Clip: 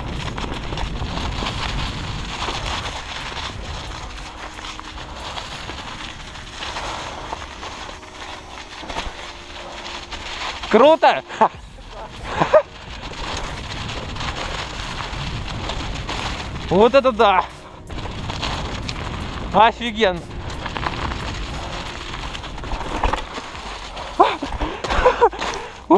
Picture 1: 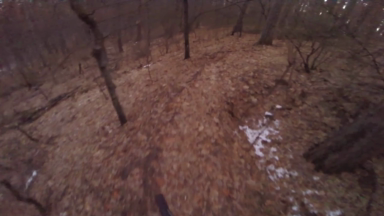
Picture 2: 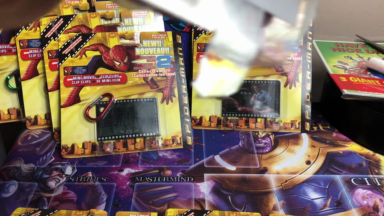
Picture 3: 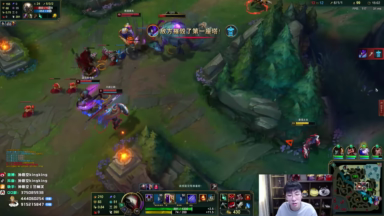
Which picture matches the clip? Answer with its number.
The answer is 1